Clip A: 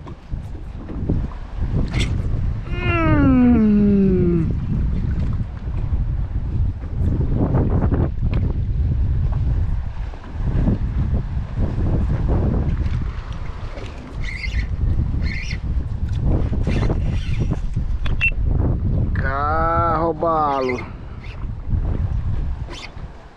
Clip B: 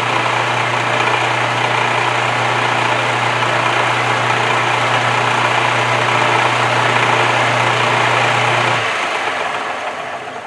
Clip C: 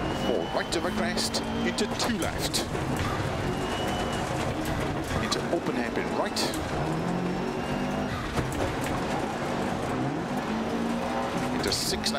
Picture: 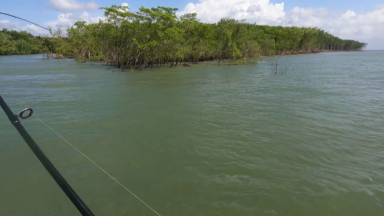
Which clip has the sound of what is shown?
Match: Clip A